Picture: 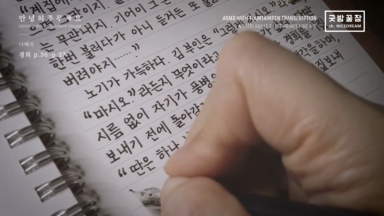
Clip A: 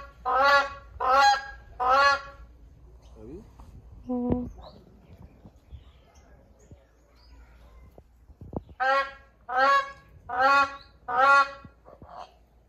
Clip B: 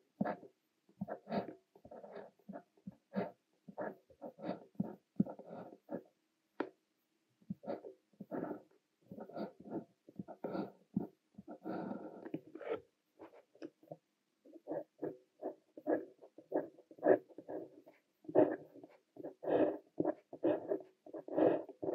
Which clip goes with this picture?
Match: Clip B